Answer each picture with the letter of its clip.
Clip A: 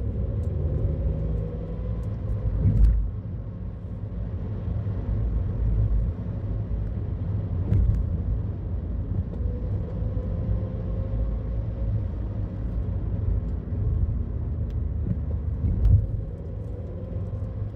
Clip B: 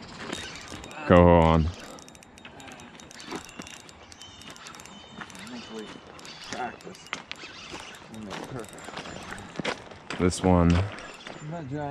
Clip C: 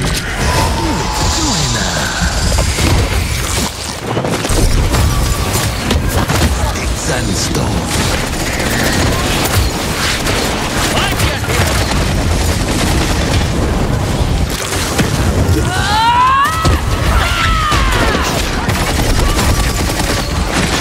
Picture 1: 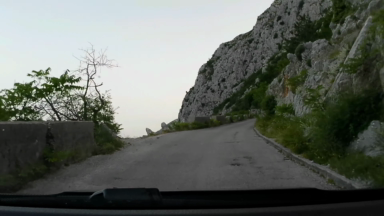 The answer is A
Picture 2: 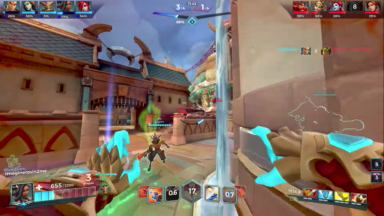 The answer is C